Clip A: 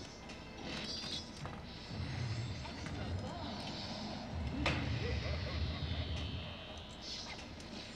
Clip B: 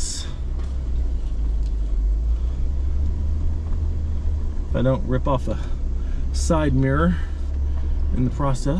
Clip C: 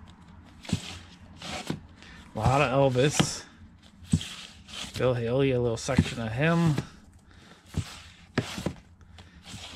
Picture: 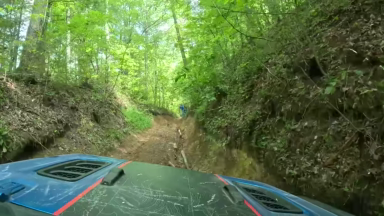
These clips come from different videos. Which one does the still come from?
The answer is B